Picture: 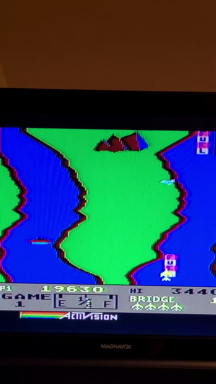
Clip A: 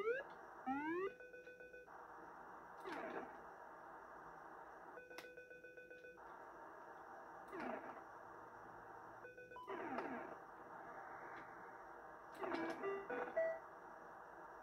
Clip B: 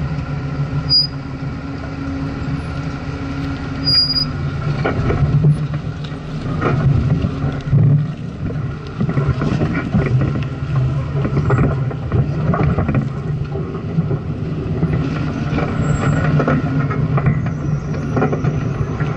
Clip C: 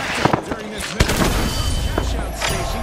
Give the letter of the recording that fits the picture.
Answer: A